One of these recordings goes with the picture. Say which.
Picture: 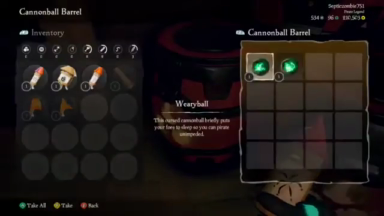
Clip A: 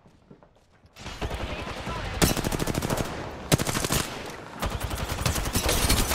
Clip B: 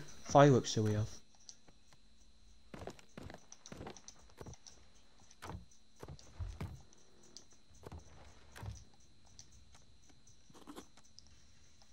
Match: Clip B